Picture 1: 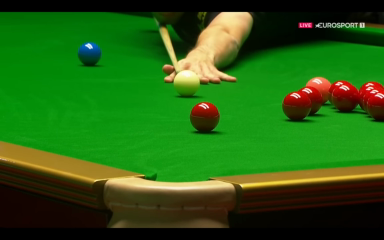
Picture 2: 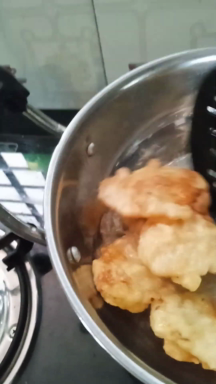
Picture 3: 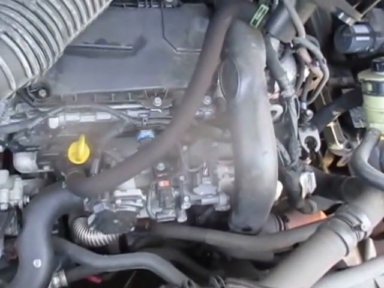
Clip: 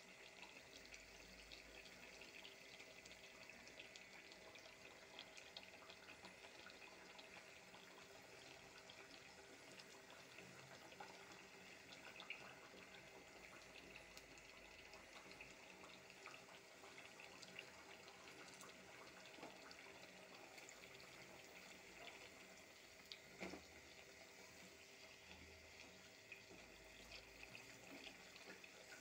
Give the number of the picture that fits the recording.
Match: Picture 2